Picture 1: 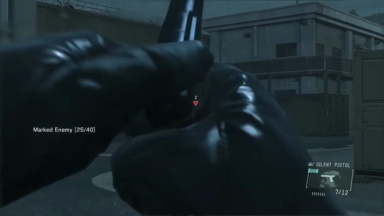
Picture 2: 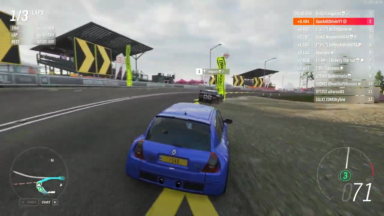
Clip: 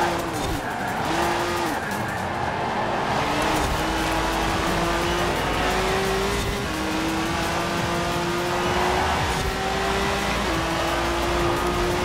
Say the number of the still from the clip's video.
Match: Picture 2